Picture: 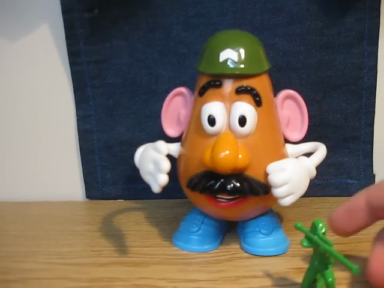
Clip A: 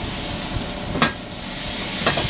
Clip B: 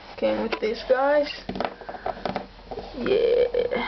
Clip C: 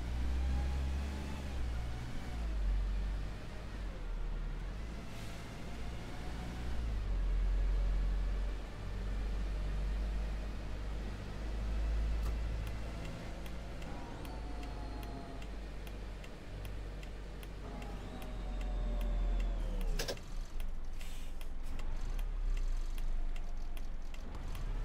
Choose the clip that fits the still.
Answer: B